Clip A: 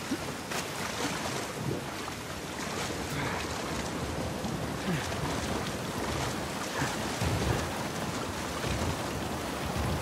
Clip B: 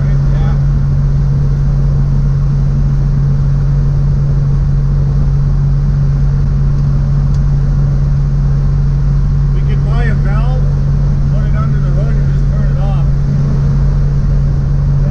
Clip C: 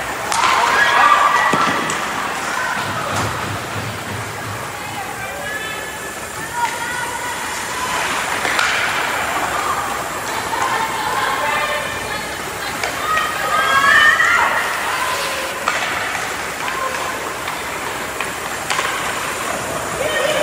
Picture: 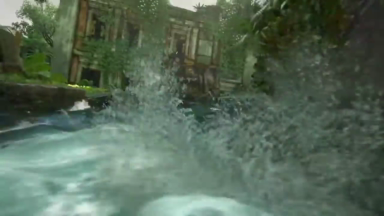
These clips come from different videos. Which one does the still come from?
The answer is A